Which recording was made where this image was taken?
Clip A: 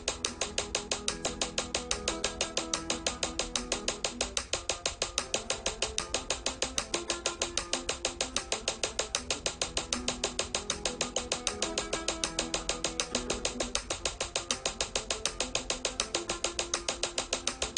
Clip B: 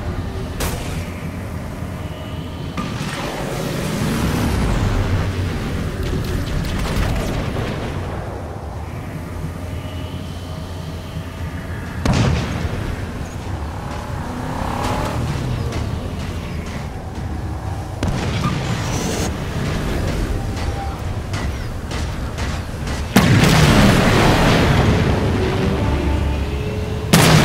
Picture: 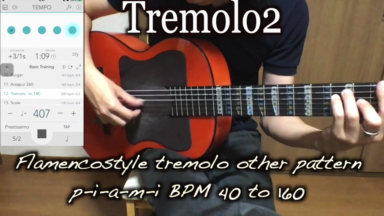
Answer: A